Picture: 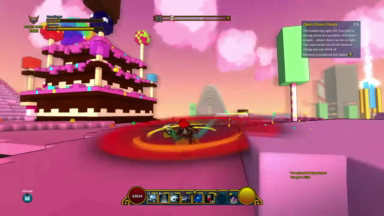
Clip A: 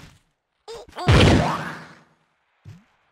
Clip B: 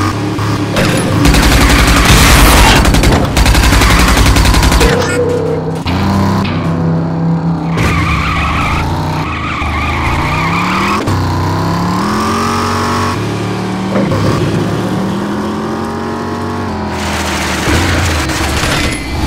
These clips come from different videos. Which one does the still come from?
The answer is A